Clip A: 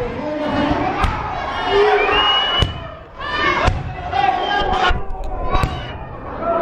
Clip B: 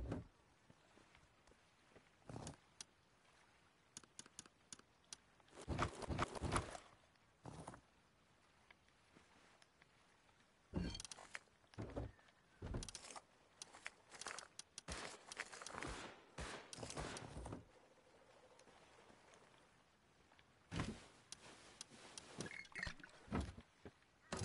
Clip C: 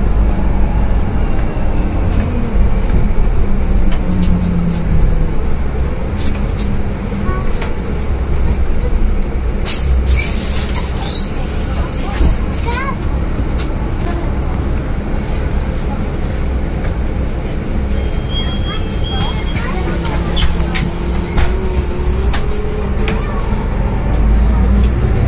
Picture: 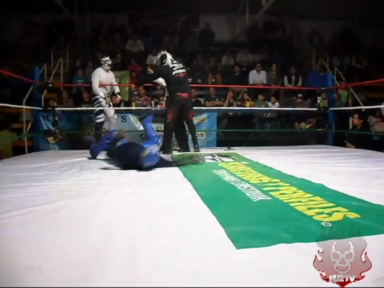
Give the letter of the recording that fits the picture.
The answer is A